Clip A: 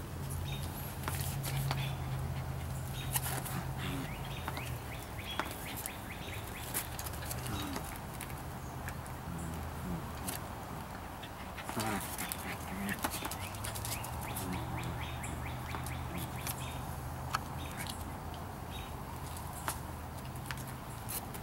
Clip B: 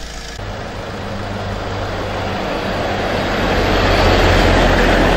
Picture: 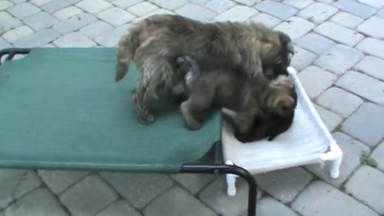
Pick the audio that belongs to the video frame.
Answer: A